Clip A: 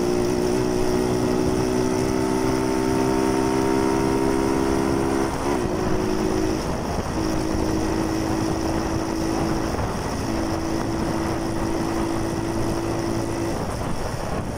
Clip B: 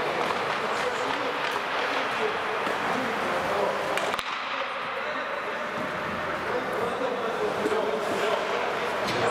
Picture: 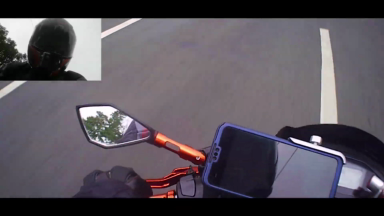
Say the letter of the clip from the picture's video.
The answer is A